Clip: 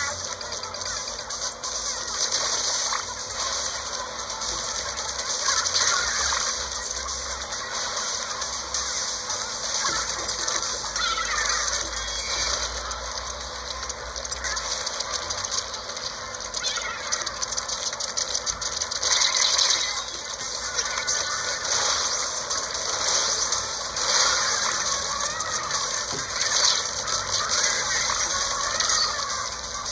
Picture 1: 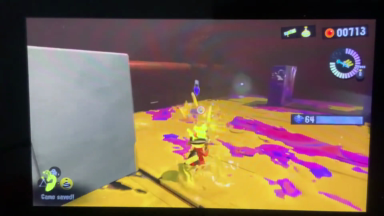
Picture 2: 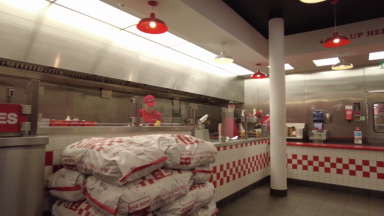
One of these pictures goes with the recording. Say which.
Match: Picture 1